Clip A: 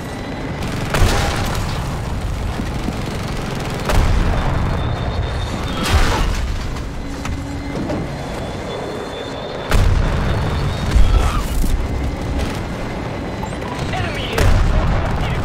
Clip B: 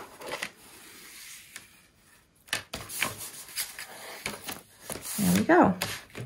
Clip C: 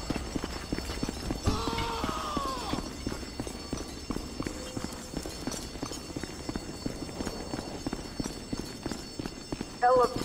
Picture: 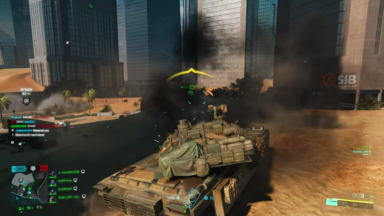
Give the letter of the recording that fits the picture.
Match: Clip A